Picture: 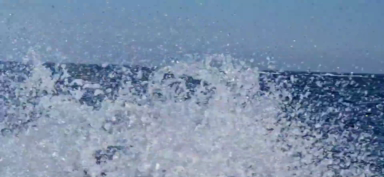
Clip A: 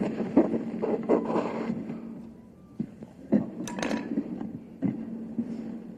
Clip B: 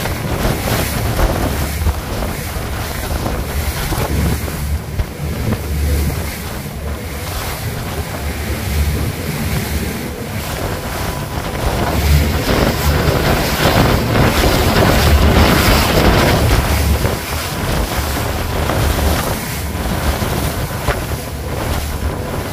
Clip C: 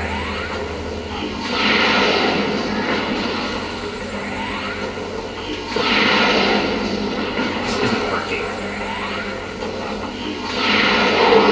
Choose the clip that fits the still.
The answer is B